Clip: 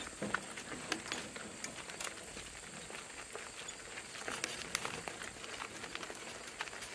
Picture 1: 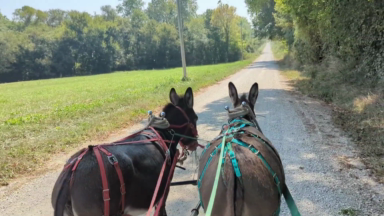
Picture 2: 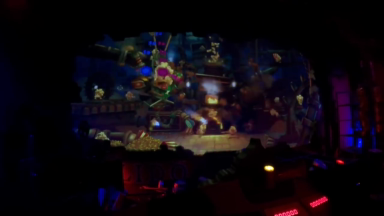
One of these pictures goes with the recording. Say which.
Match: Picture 1